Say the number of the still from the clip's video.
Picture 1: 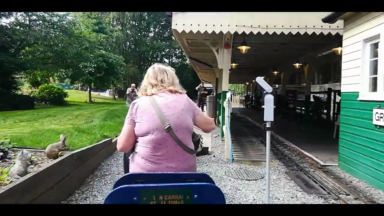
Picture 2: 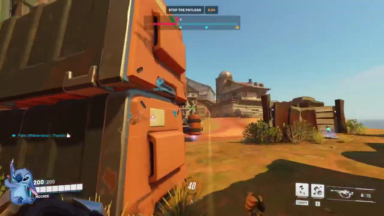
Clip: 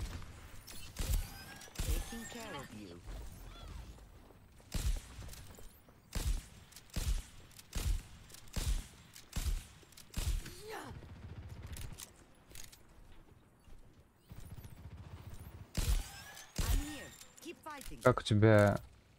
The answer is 2